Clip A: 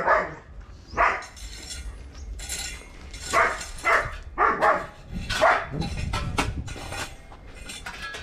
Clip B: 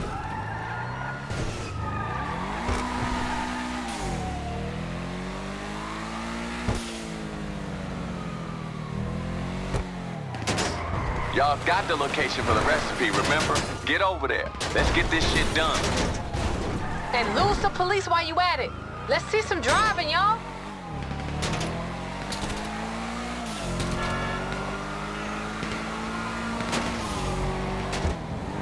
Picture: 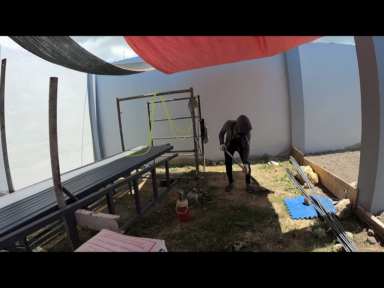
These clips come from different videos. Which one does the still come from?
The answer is A